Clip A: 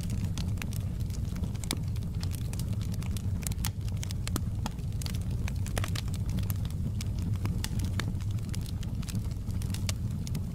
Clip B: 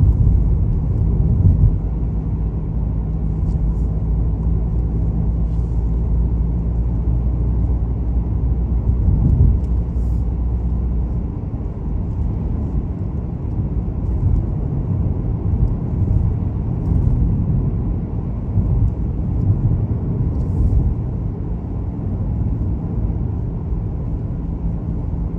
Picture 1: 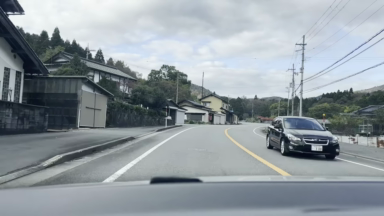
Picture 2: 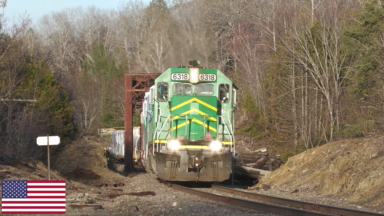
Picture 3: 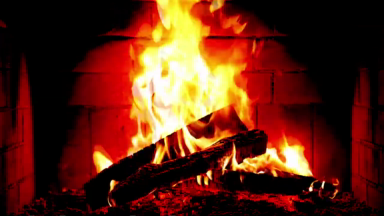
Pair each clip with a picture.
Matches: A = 3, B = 1